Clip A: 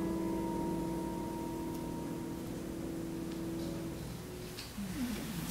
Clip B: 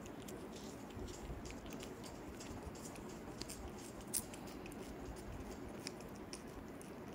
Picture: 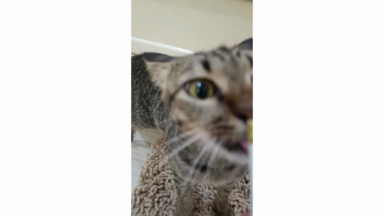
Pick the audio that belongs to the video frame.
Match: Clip B